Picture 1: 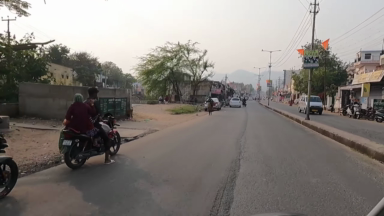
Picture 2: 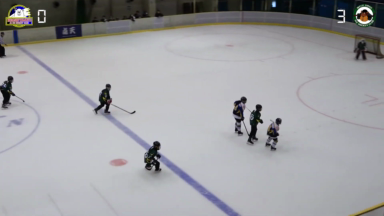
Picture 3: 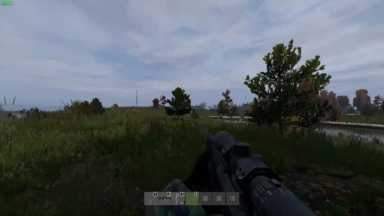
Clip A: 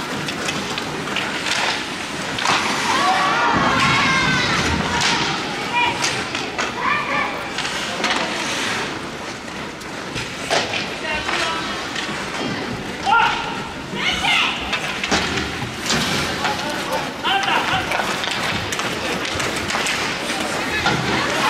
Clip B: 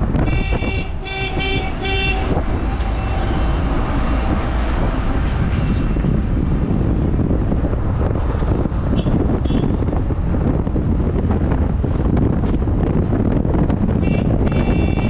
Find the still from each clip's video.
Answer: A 2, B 1